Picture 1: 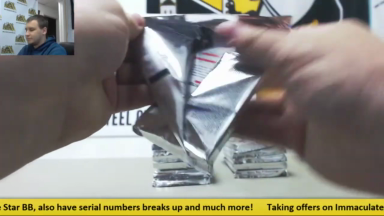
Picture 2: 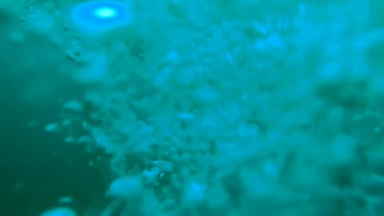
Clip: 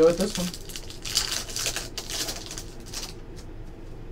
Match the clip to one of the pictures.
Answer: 1